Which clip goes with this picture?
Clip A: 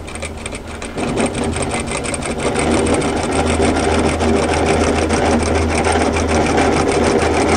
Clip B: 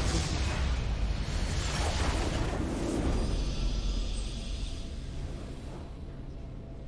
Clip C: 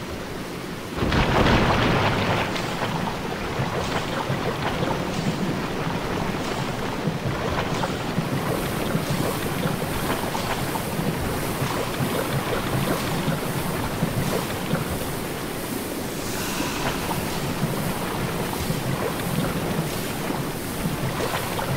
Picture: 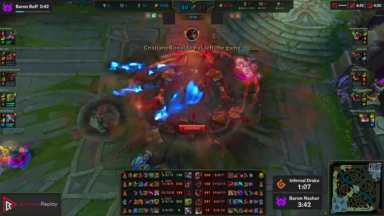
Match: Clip B